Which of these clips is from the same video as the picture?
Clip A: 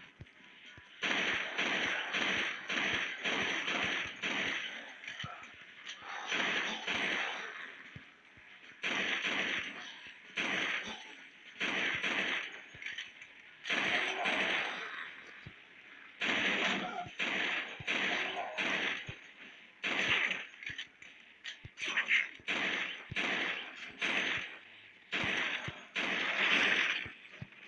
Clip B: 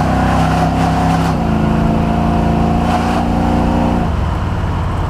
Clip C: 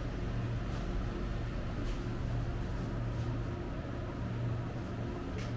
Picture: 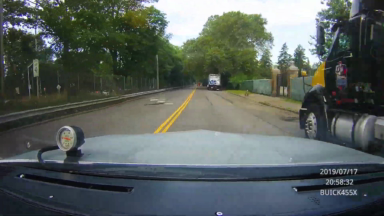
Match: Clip B